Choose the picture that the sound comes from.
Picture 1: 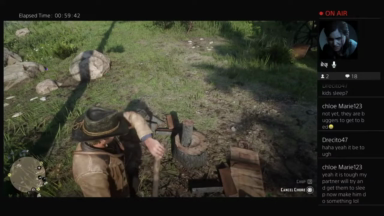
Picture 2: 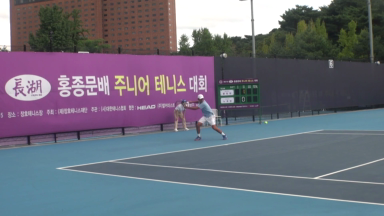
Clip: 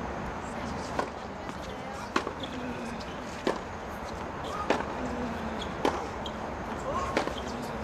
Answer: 2